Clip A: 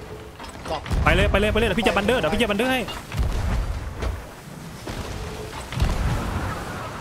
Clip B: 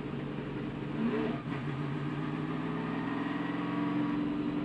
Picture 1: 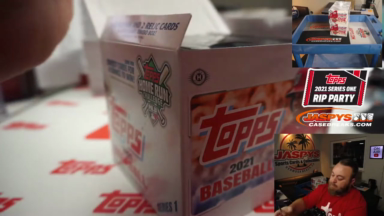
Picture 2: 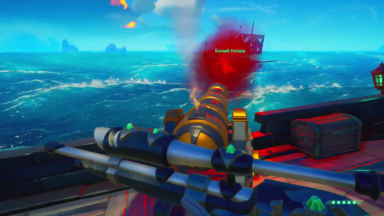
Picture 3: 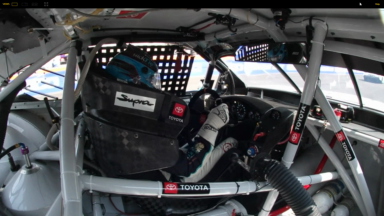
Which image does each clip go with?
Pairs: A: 2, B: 3